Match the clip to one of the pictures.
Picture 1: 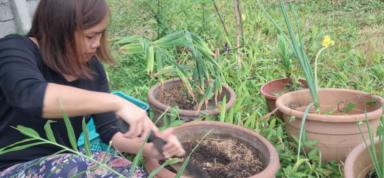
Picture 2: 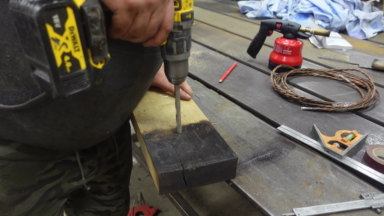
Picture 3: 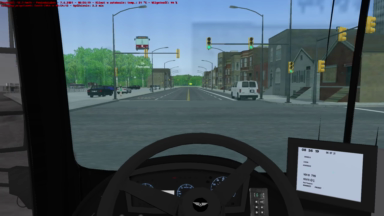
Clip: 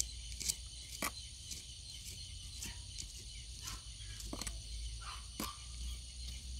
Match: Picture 1